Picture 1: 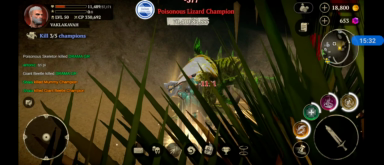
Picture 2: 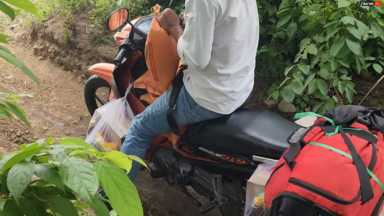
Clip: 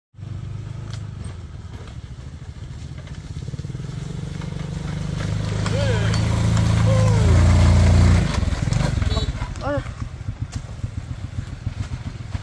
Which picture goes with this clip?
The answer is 2